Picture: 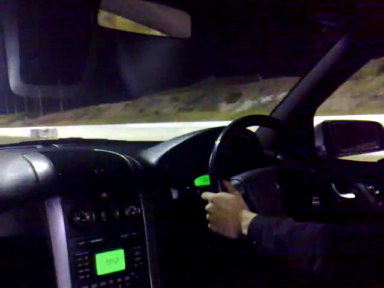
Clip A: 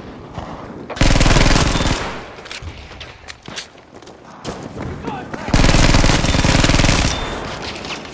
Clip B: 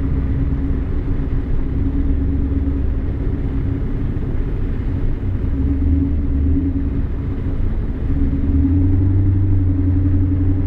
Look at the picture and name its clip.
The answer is B